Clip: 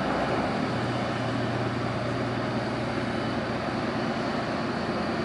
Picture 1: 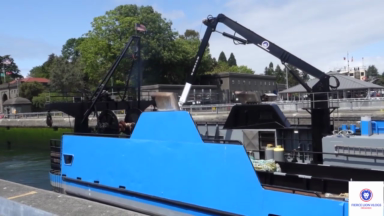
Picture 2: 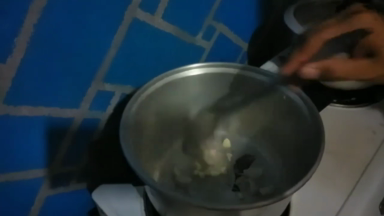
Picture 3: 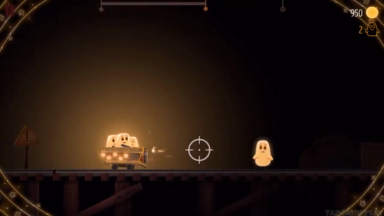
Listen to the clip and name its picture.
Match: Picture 1